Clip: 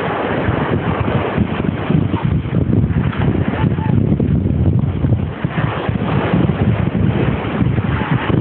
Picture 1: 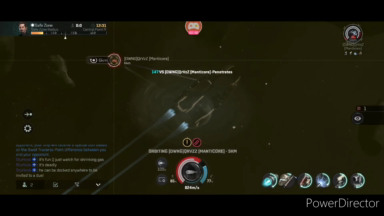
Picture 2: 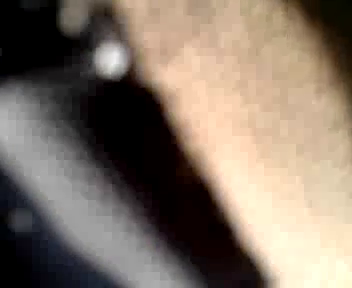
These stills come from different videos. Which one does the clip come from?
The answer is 2